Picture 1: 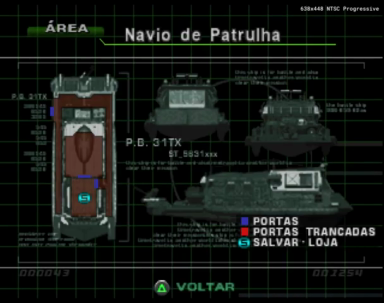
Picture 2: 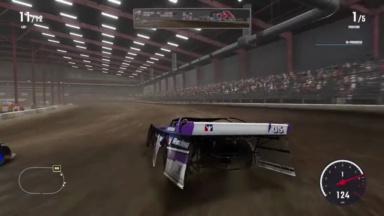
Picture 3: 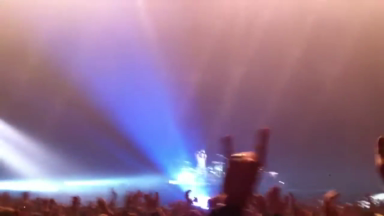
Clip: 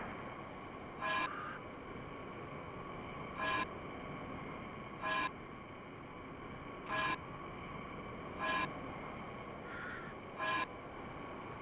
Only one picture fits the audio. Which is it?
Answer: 1